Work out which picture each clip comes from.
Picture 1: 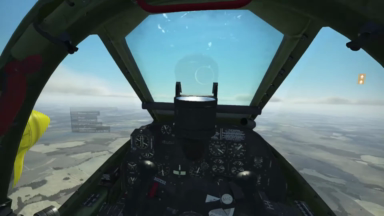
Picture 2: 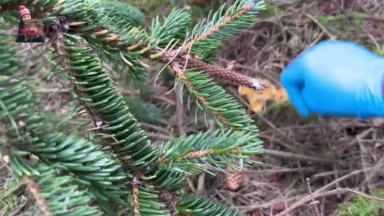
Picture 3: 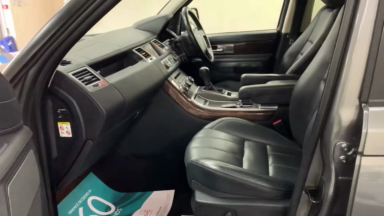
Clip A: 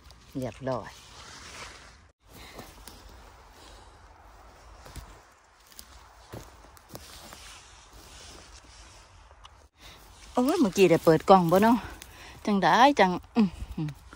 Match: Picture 2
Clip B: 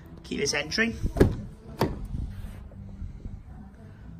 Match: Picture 3